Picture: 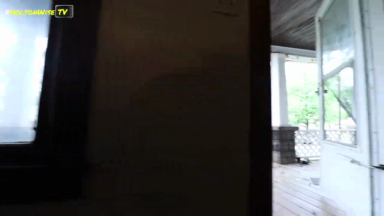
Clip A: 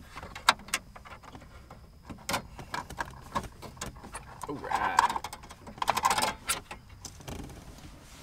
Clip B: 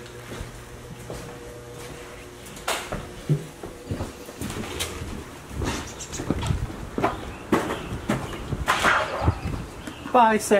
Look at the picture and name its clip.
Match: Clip B